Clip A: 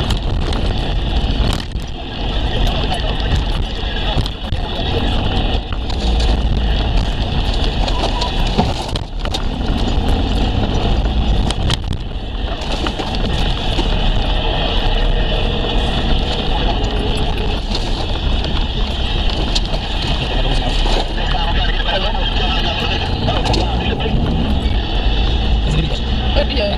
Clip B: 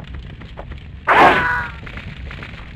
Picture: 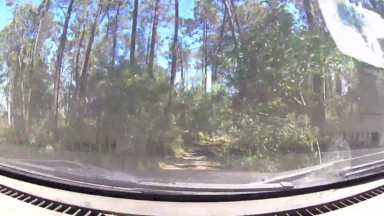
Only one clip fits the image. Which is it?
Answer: A